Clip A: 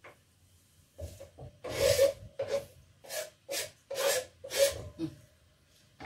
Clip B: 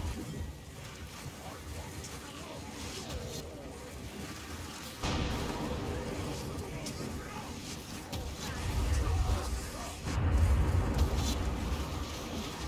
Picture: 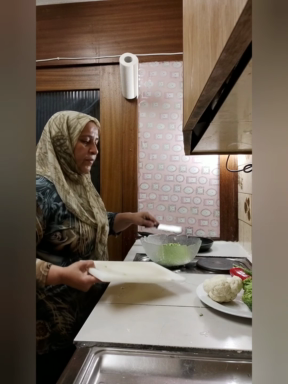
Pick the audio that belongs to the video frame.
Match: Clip A